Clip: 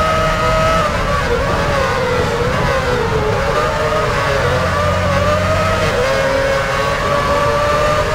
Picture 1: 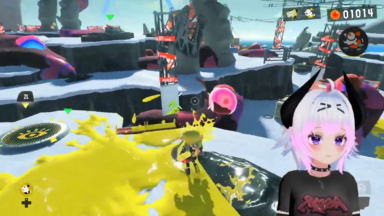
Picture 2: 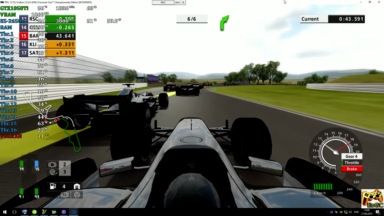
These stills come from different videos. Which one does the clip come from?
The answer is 2